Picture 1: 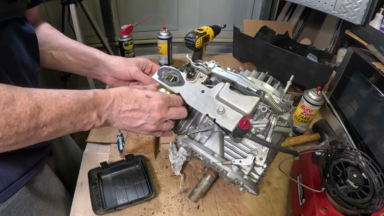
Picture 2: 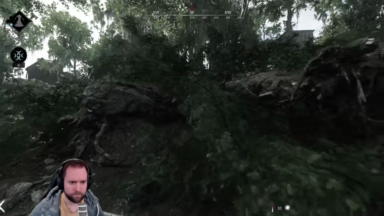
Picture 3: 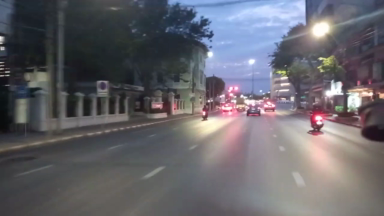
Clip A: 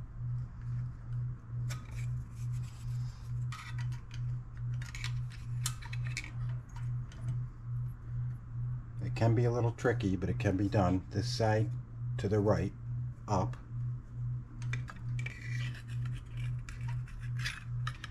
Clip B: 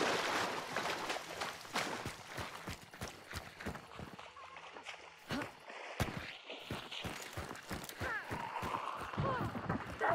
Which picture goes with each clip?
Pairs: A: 1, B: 2